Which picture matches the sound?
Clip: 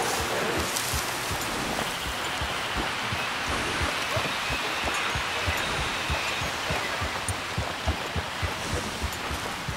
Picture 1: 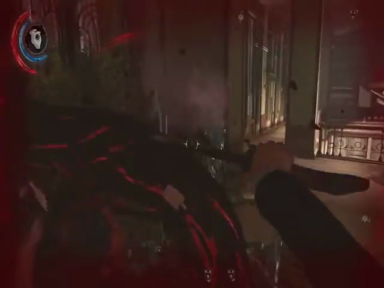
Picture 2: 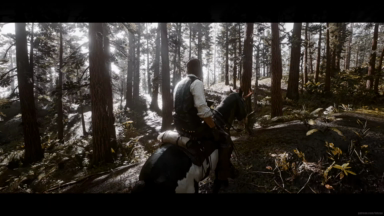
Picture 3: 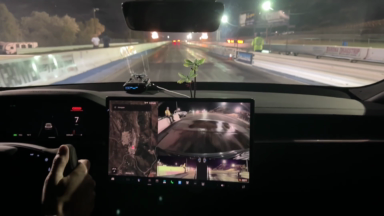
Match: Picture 2